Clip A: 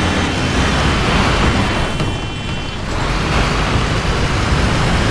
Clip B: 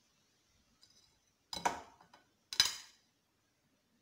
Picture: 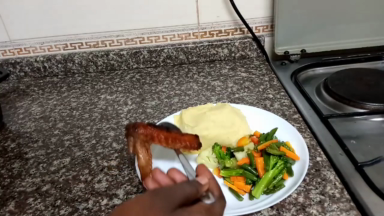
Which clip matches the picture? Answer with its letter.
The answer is B